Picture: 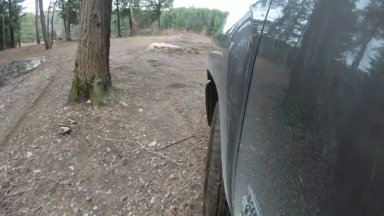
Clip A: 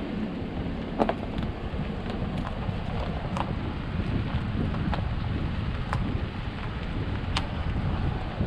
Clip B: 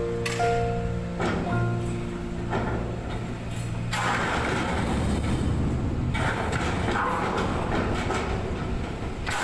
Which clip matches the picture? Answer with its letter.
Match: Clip A